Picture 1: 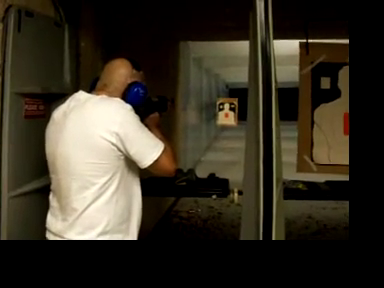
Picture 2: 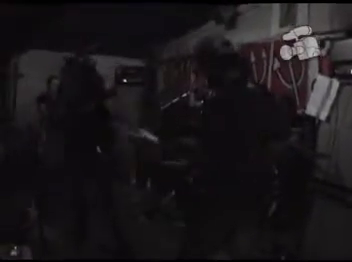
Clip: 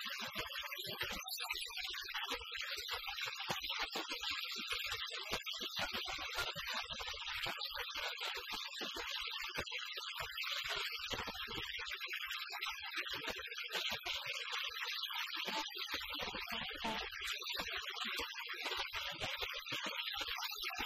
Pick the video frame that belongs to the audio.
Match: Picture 2